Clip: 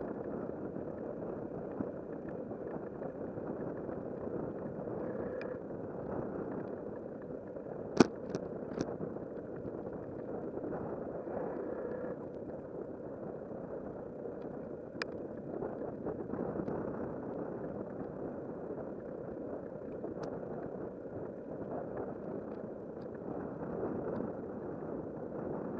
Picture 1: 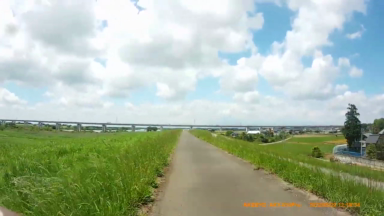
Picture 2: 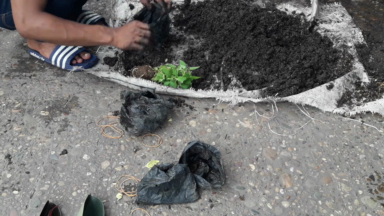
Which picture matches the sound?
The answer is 1